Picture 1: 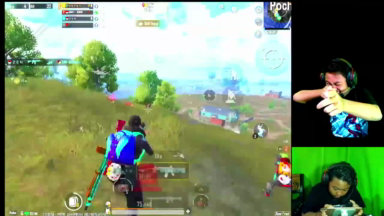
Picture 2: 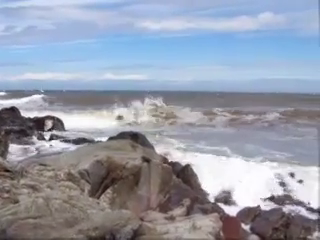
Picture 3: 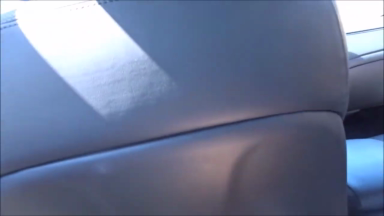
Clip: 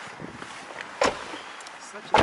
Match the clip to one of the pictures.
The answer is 3